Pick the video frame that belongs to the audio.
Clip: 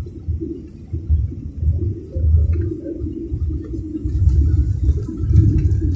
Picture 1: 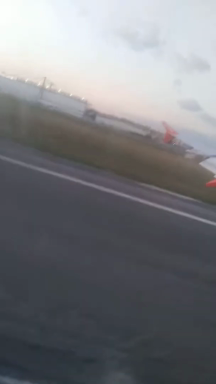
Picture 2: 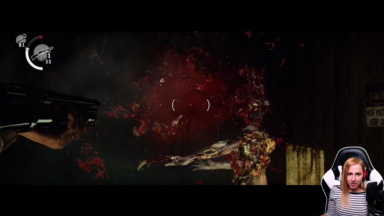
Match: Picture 1